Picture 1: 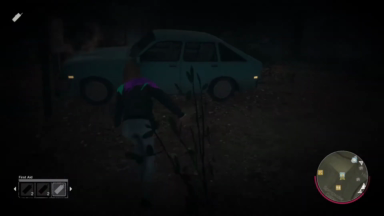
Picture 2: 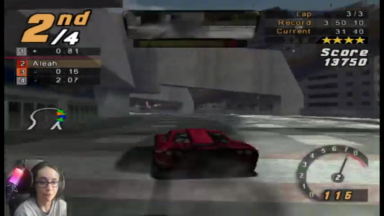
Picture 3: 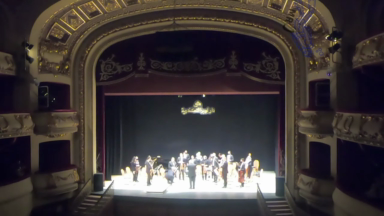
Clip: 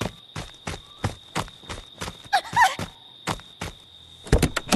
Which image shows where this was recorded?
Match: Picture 1